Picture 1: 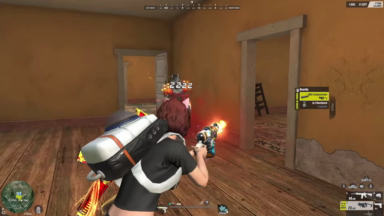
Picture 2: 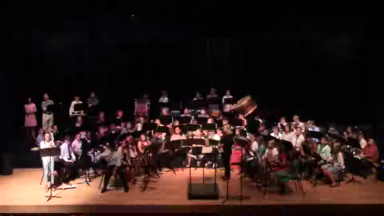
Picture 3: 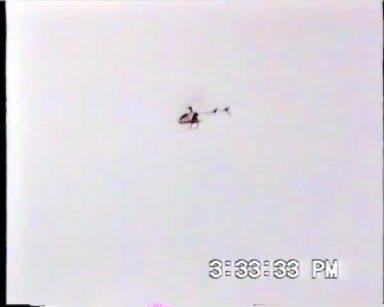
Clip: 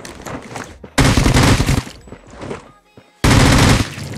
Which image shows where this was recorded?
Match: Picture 1